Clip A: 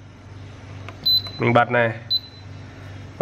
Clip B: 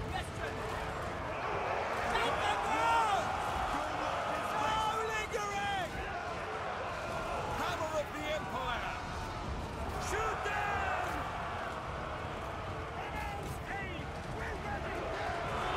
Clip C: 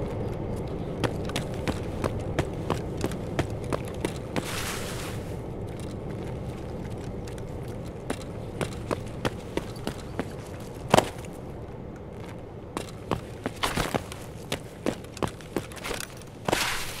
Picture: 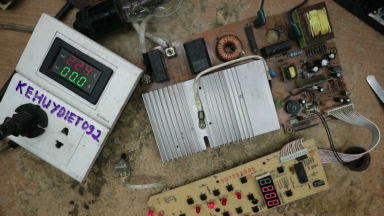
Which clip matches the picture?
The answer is A